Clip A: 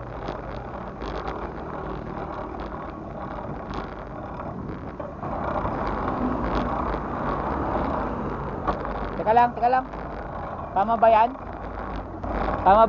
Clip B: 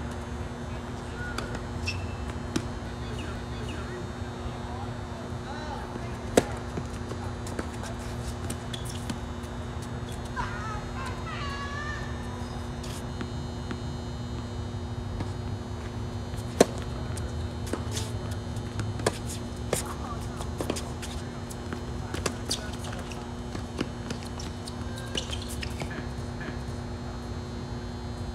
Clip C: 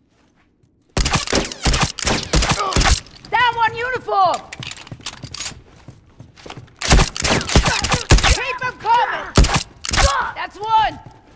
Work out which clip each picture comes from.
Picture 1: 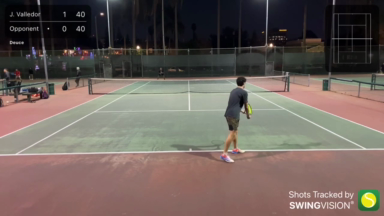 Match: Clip B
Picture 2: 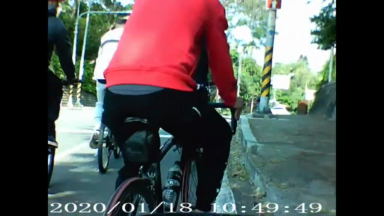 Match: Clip A